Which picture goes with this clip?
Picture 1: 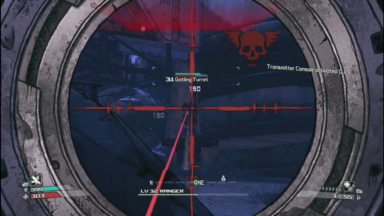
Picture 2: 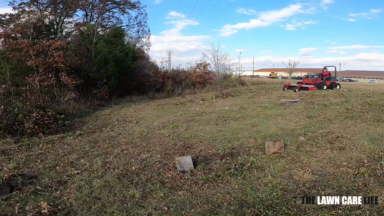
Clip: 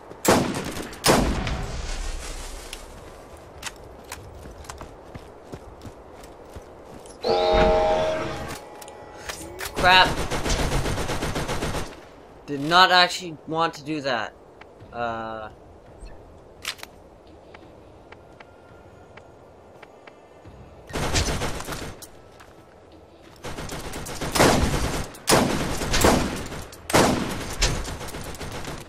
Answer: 1